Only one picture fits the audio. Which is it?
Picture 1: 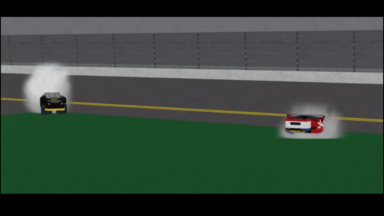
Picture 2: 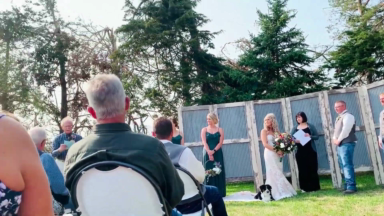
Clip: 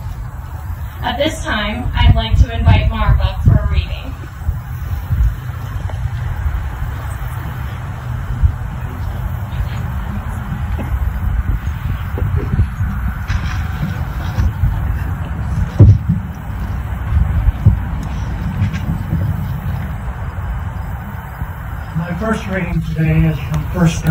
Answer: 2